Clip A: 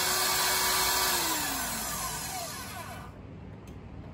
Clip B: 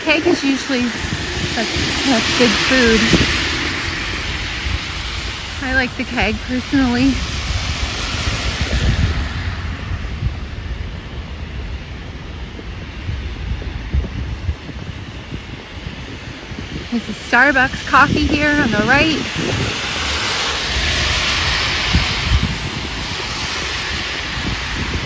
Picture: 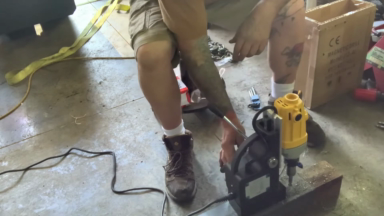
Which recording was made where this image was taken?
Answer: A